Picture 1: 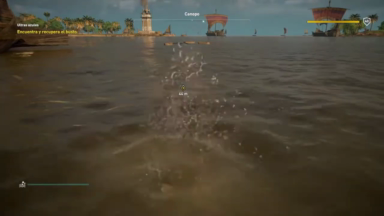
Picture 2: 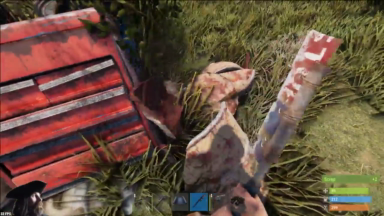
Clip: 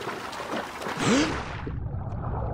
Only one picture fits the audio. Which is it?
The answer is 1